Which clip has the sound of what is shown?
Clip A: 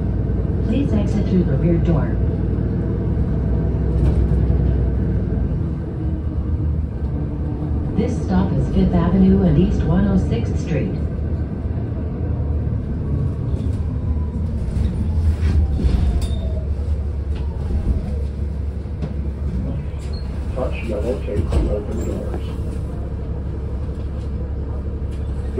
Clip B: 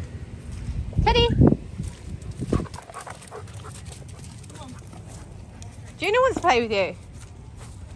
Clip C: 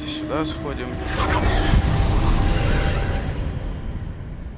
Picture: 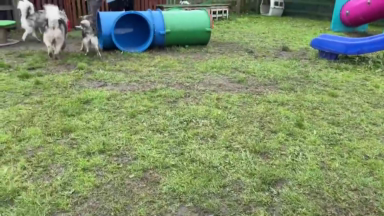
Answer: B